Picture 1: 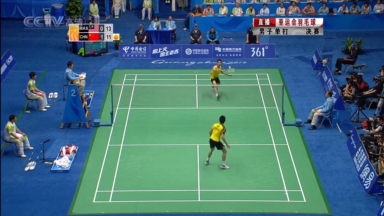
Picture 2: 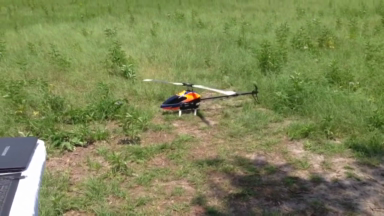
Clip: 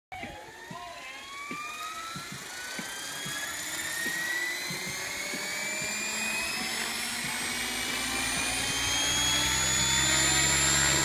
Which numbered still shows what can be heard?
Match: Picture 2